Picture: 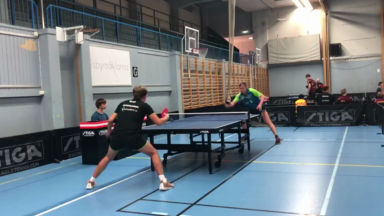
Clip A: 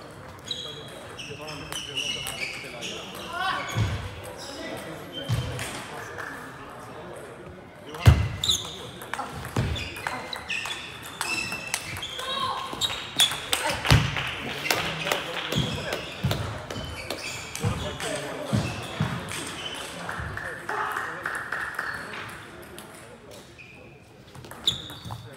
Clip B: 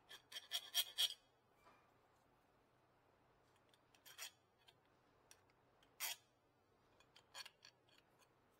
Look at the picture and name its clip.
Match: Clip A